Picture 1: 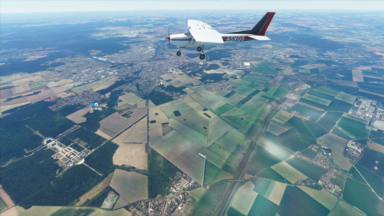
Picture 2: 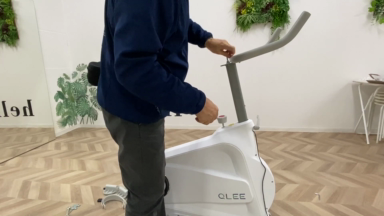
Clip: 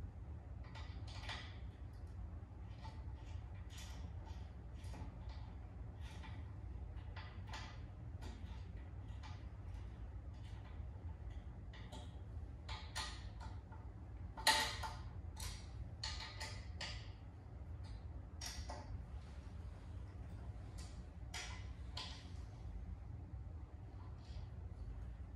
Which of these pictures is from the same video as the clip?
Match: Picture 2